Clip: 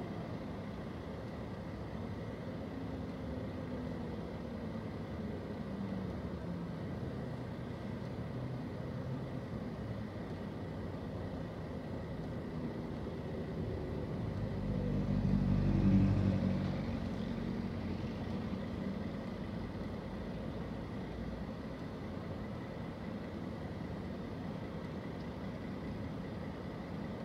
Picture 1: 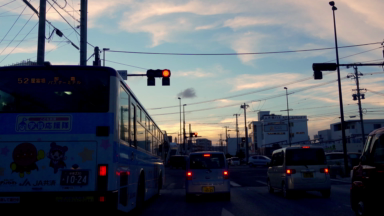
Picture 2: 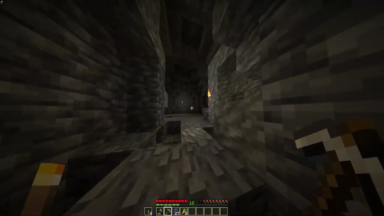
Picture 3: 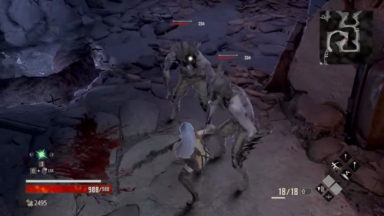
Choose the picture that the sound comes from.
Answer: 1